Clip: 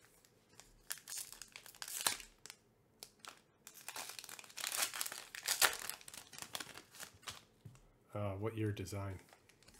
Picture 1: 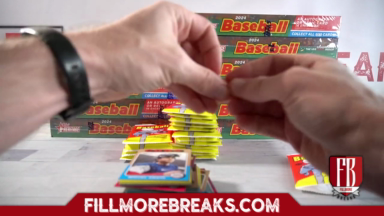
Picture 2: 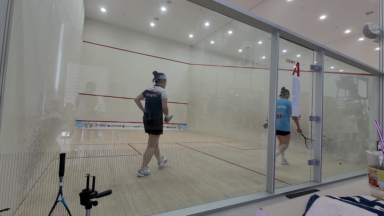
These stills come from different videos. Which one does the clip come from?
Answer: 1